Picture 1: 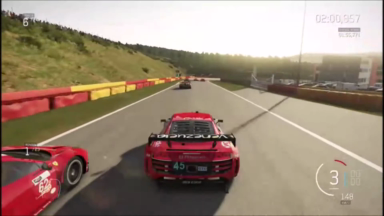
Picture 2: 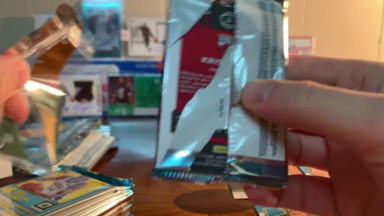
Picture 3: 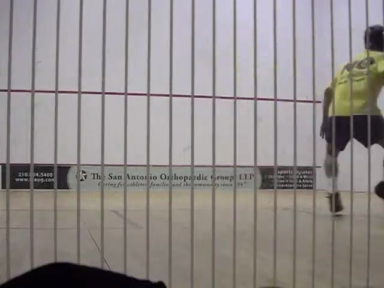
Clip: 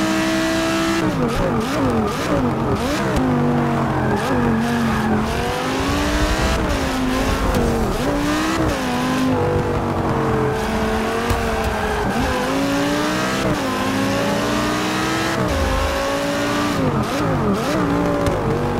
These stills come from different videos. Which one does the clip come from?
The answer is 1